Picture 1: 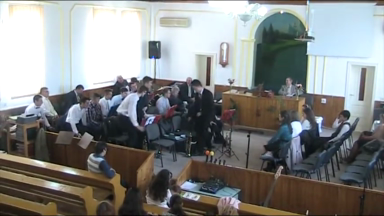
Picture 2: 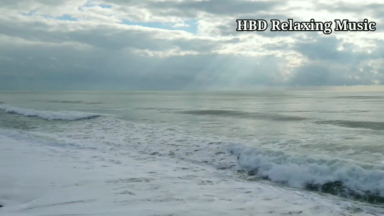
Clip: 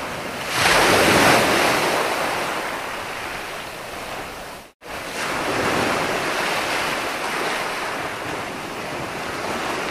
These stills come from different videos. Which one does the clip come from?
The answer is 2